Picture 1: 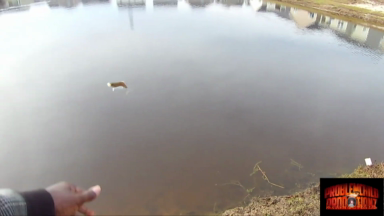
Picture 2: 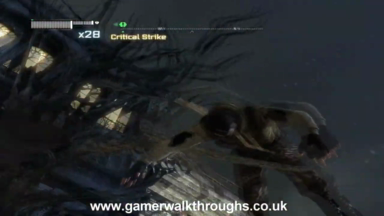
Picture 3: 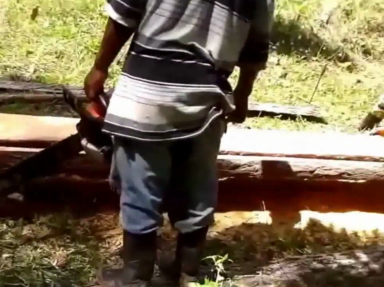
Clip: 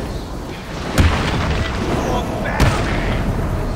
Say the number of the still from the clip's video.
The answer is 2